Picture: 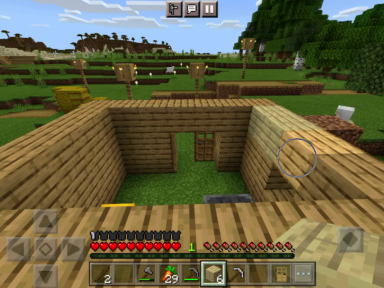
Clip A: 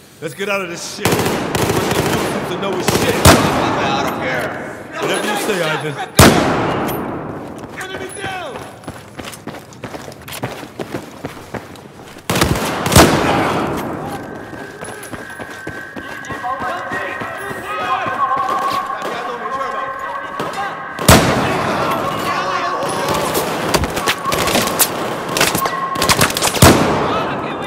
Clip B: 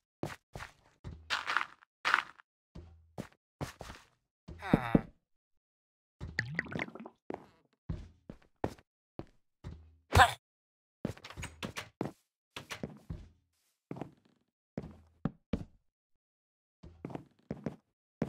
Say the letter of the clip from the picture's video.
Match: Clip B